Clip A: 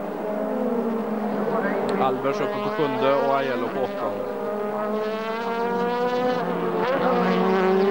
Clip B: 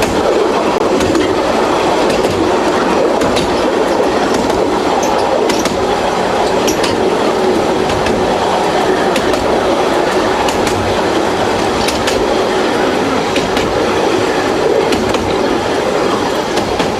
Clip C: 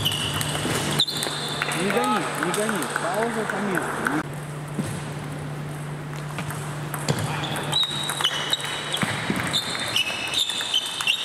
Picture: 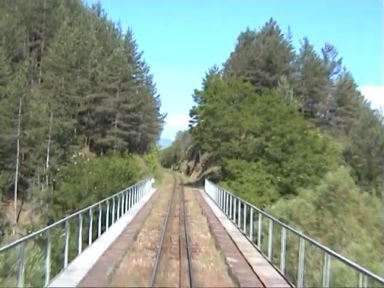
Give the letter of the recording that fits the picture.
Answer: B